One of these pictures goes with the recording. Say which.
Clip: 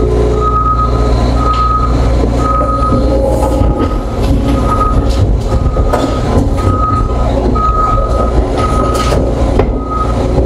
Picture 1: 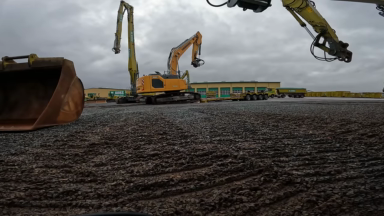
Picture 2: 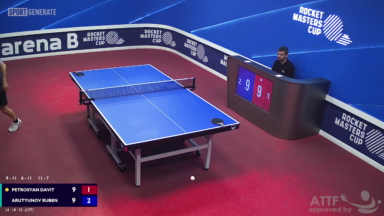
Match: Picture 1